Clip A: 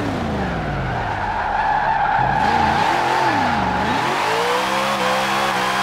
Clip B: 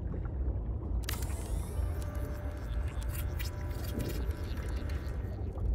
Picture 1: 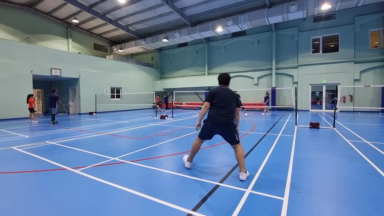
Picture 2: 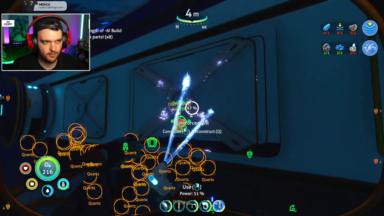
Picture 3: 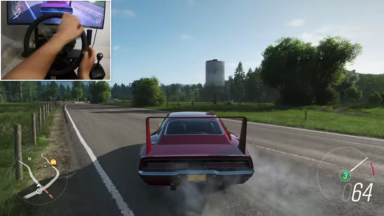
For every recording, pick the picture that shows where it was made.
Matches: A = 3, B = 2